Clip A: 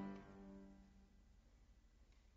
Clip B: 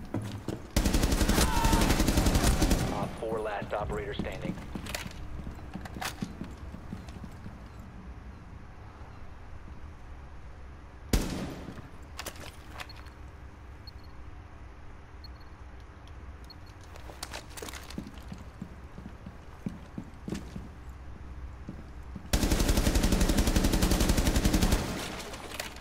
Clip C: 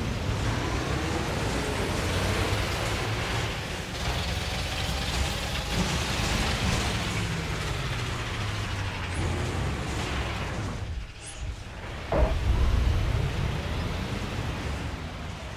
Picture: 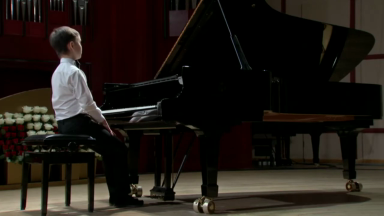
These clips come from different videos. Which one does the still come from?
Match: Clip A